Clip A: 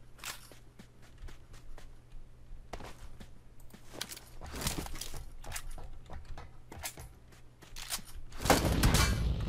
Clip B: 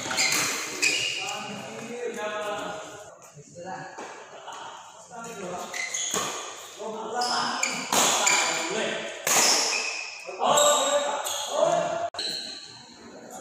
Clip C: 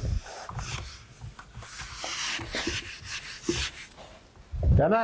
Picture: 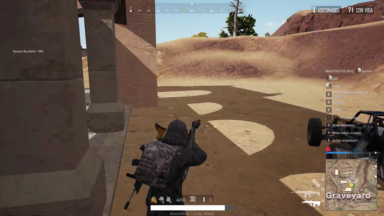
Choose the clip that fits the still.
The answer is A